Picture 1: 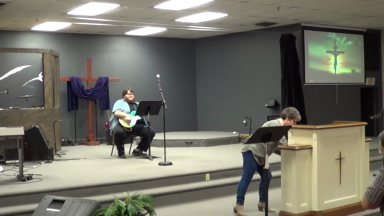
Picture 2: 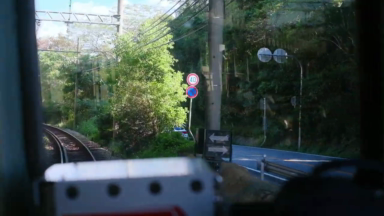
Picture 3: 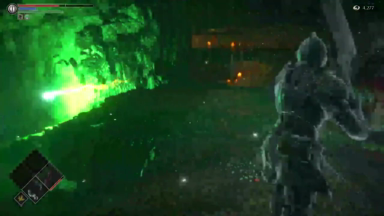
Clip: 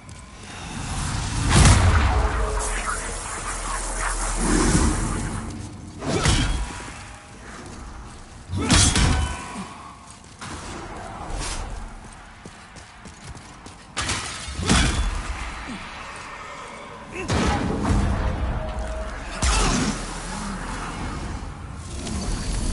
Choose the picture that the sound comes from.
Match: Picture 3